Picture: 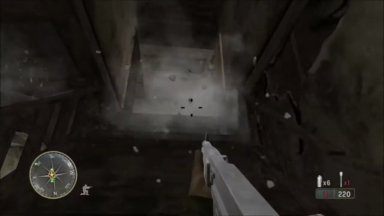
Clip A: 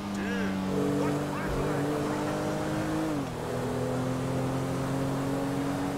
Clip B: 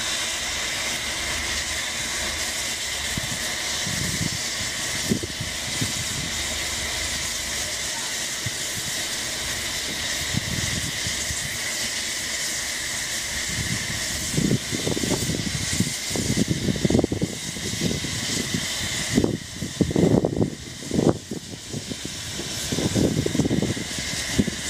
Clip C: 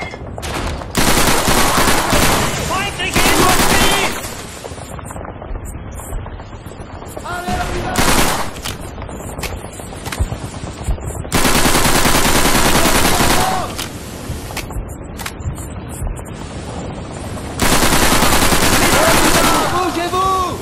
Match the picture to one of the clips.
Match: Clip C